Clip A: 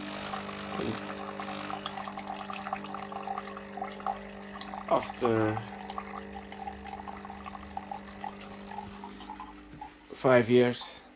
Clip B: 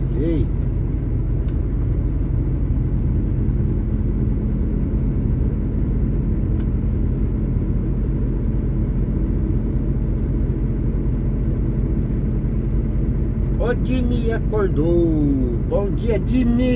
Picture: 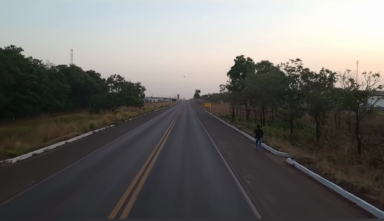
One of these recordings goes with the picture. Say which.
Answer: B